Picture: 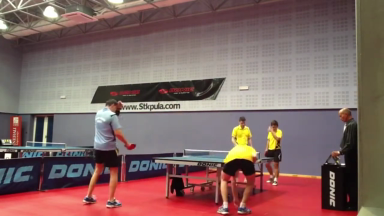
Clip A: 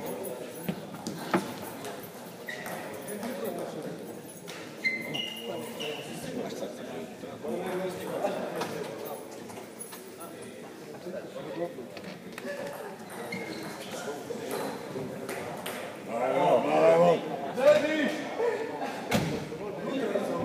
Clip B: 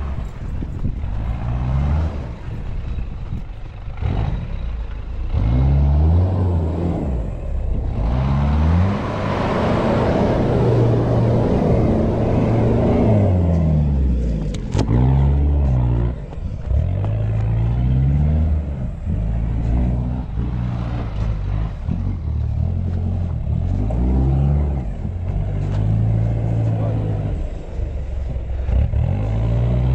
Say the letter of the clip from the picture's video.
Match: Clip A